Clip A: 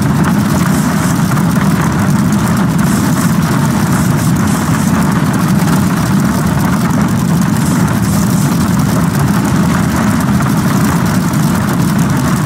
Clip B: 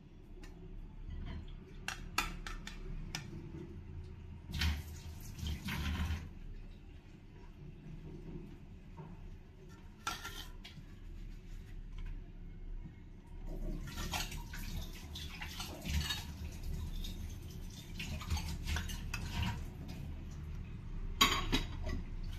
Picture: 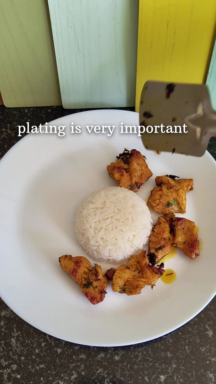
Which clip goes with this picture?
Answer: B